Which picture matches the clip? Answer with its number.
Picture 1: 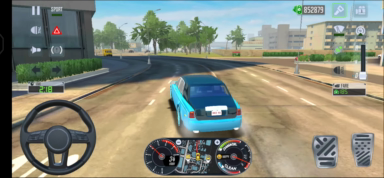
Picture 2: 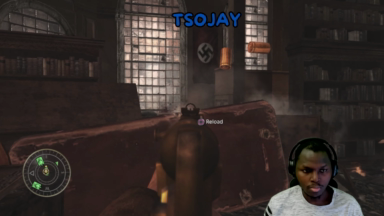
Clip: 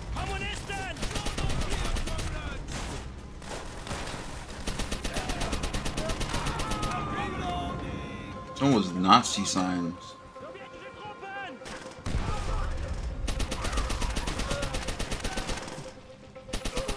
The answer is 2